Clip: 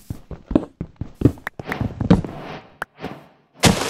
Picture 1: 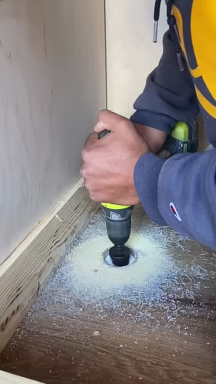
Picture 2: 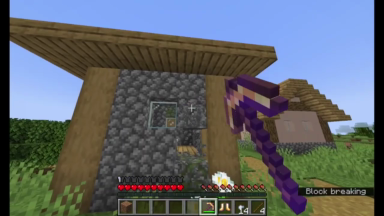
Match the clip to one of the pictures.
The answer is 2